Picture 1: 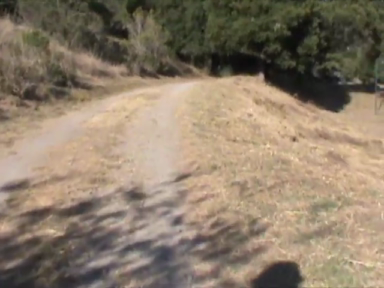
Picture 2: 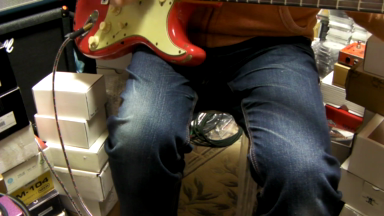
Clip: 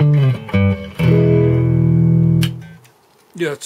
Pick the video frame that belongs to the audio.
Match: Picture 2